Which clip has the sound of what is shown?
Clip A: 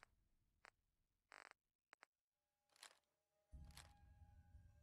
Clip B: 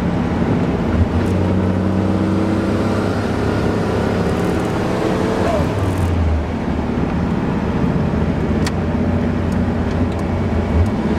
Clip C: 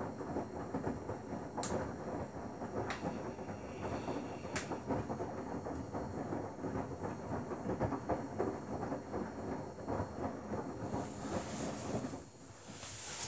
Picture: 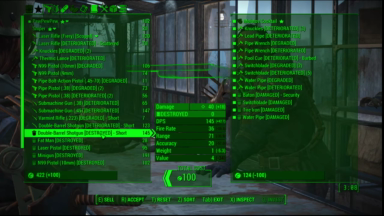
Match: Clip A